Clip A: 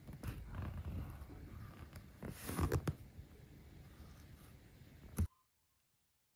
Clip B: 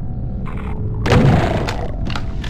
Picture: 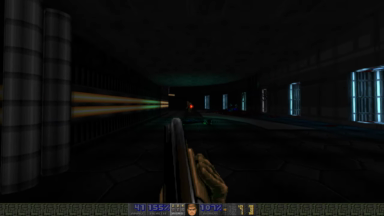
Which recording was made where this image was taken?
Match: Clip B